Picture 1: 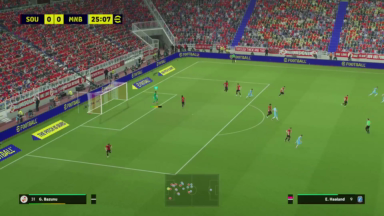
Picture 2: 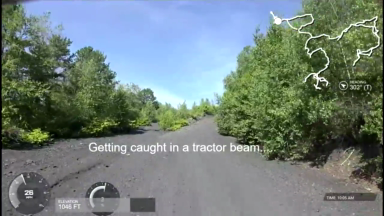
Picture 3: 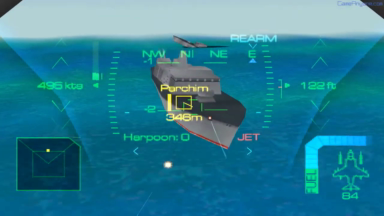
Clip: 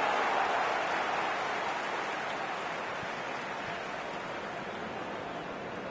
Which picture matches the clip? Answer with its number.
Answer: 1